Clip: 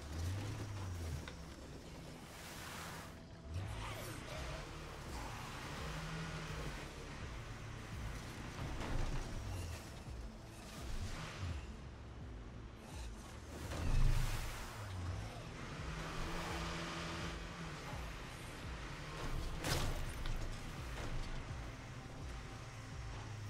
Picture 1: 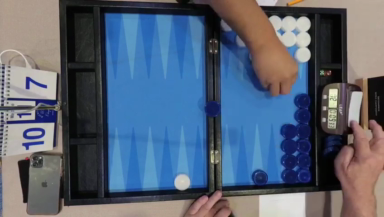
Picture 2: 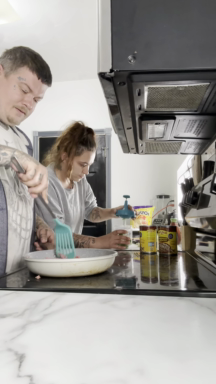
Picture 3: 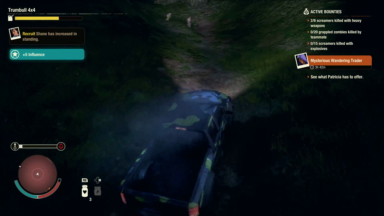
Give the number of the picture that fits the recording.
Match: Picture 3